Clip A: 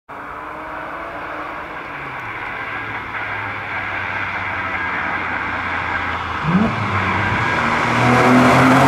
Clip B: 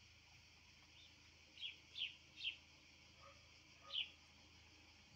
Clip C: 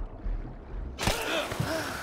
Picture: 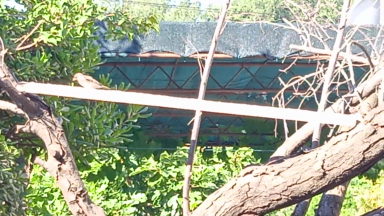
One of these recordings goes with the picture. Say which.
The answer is B